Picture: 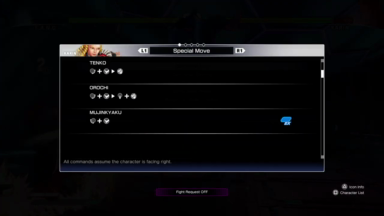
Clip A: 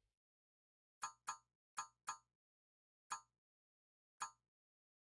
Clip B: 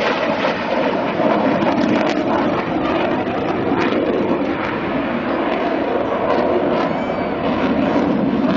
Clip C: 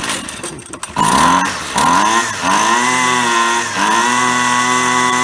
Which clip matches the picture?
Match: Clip A